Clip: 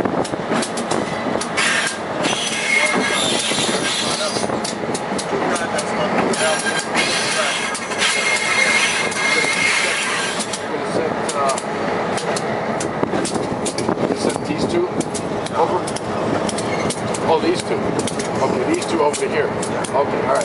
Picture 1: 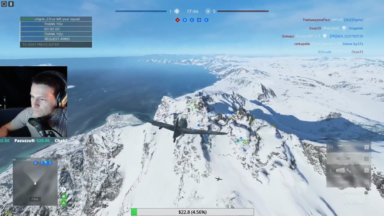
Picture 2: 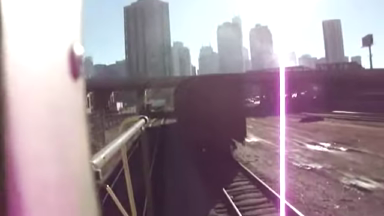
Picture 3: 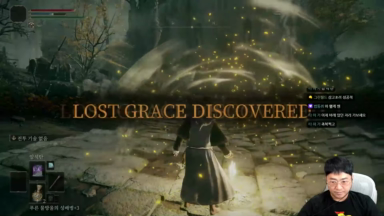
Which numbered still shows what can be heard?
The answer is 2